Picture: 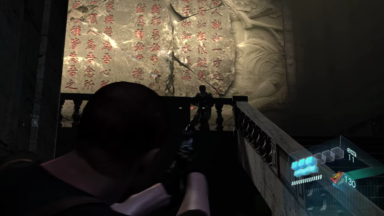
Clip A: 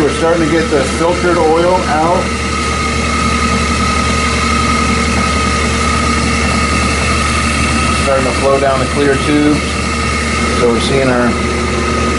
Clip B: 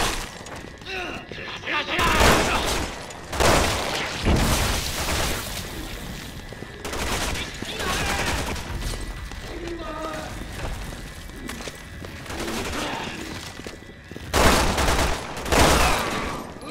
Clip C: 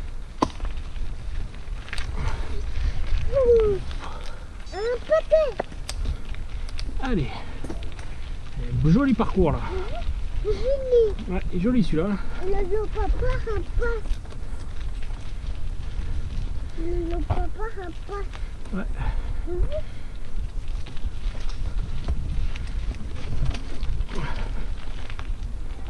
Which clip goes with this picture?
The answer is B